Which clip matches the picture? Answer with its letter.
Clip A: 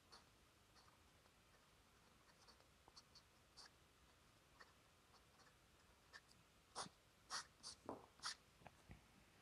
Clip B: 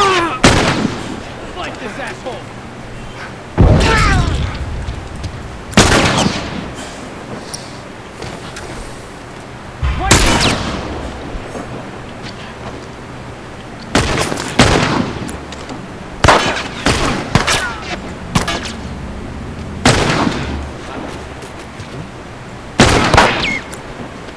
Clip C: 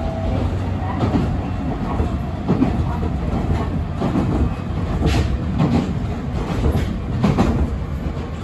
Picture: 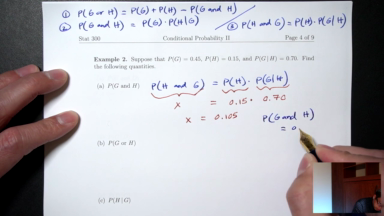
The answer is A